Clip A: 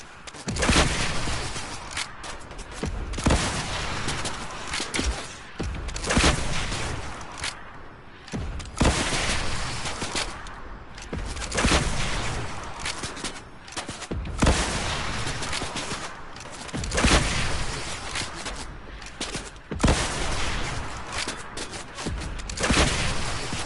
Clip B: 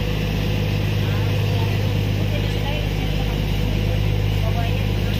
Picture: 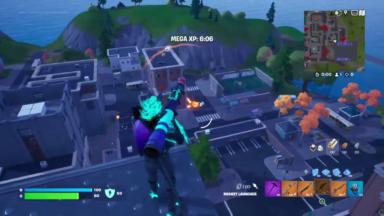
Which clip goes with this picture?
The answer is A